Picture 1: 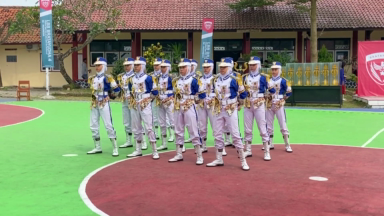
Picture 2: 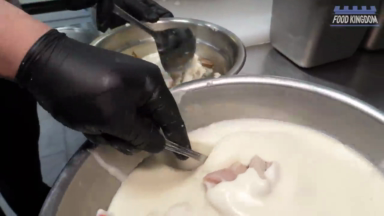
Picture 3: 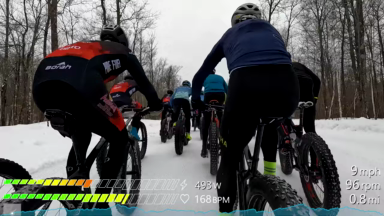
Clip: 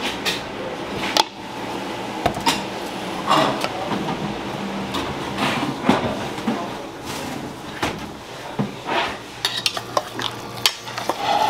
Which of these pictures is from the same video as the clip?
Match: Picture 2